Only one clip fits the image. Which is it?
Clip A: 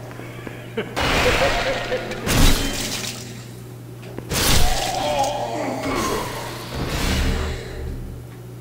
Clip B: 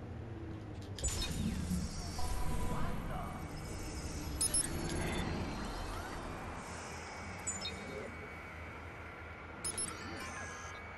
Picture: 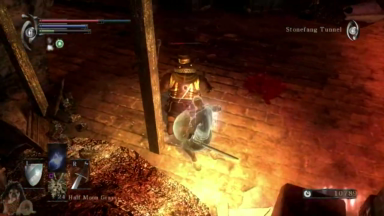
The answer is A